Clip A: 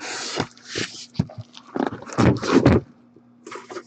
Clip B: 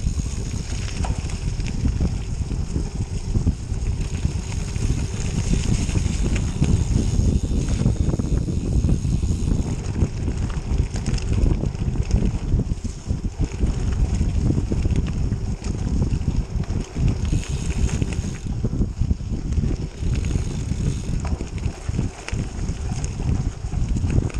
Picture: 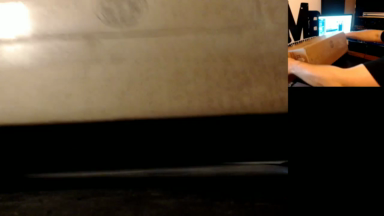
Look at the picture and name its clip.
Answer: A